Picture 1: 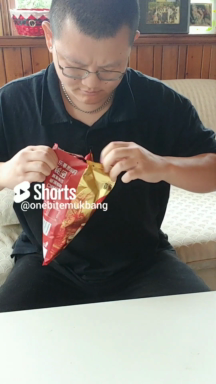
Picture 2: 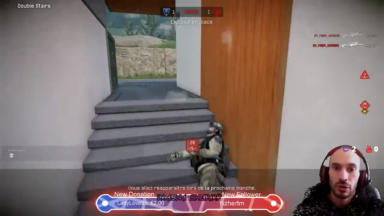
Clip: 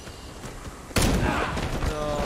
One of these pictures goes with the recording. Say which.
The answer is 2